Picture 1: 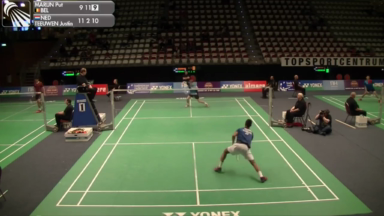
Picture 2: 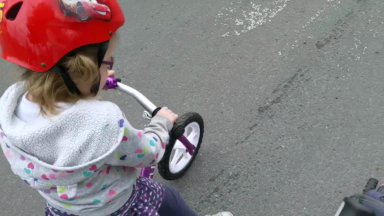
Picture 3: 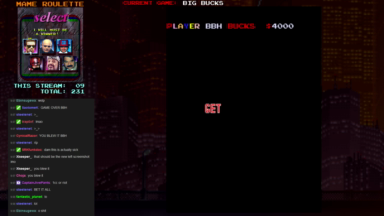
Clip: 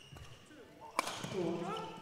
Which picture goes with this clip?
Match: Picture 1